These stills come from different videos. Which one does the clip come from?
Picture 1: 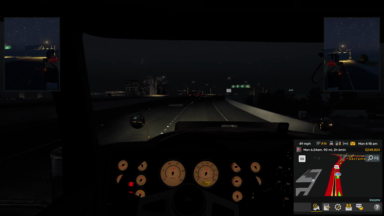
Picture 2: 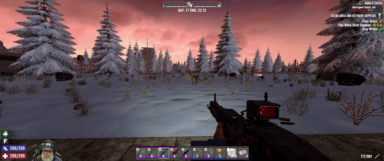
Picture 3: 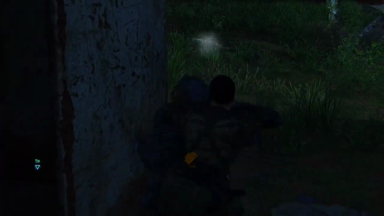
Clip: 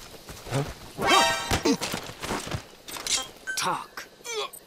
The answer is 3